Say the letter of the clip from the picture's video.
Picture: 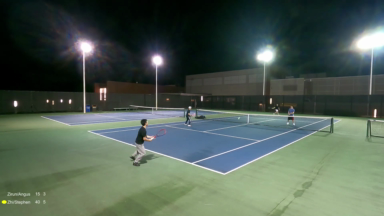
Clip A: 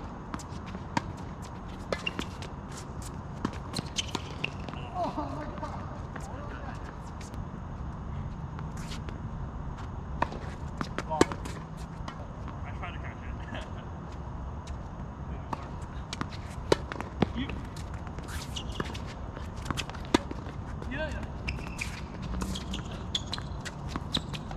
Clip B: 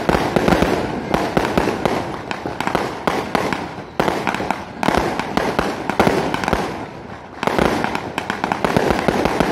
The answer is A